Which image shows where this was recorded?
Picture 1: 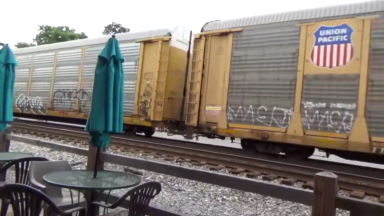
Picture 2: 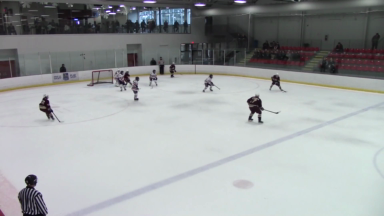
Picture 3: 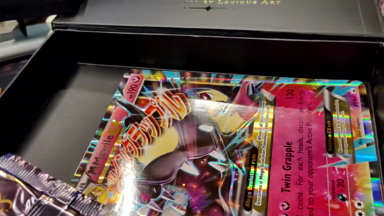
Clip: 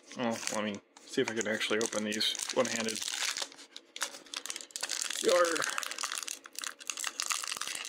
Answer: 3